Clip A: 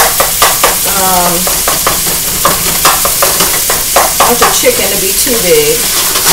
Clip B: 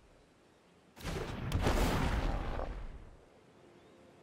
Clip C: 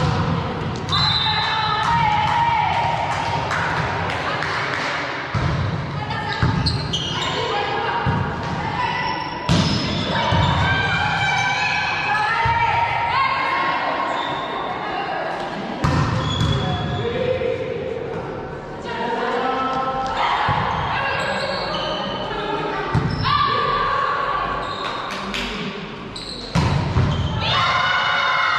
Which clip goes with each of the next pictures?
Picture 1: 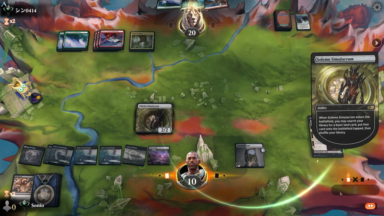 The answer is B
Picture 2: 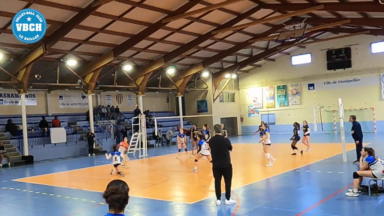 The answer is C